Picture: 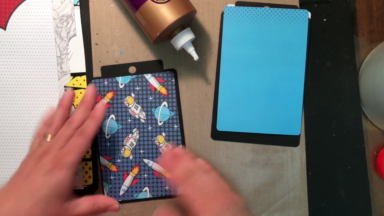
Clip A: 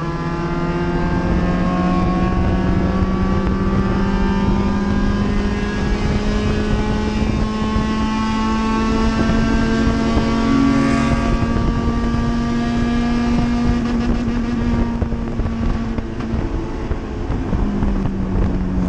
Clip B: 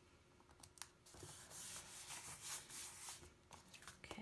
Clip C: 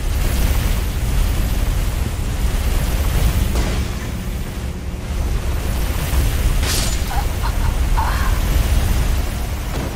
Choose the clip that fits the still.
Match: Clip B